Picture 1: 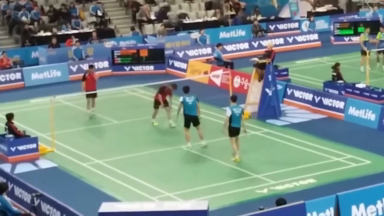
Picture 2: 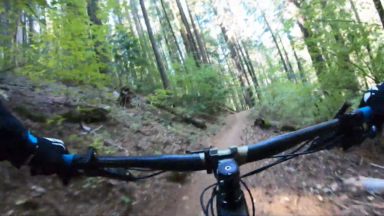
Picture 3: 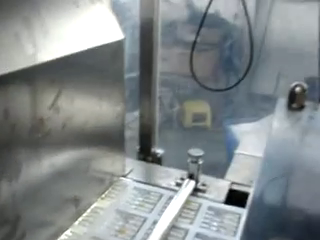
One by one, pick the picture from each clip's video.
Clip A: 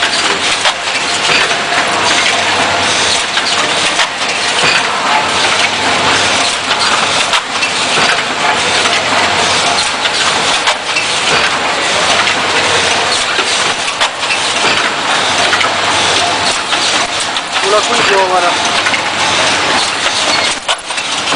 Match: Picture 3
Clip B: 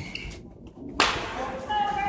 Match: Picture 1